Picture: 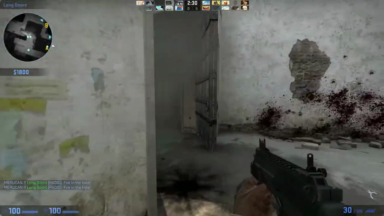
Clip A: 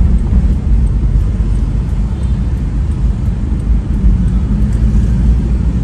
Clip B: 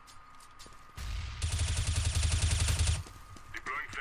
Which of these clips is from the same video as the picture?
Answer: B